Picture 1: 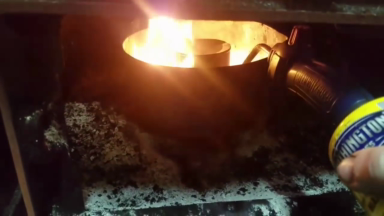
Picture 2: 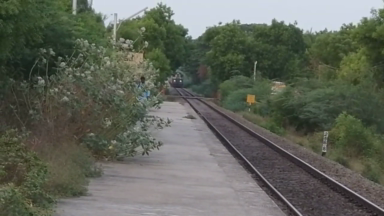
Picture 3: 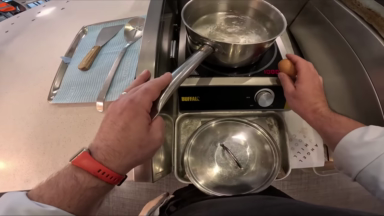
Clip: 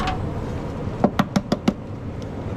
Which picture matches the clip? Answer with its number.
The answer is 3